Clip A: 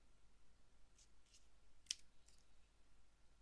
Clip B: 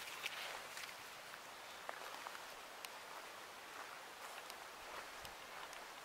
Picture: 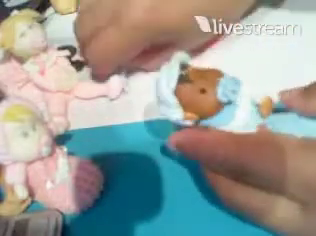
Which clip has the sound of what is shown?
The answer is A